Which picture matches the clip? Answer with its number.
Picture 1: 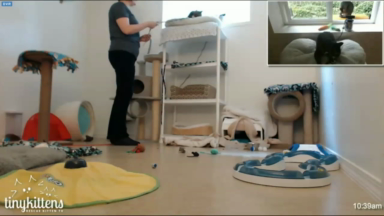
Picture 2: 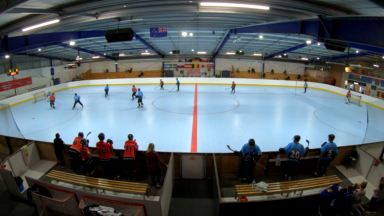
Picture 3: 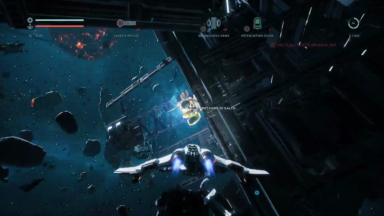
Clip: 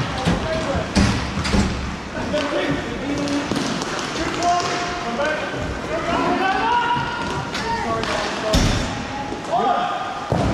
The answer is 2